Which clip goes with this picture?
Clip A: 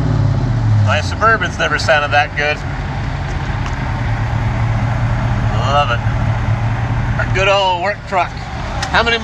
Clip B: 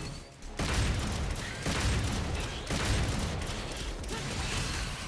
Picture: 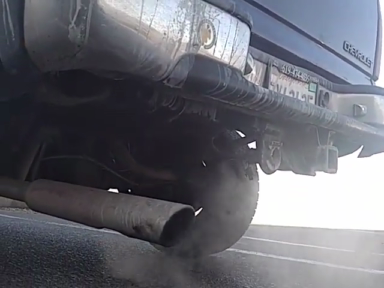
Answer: A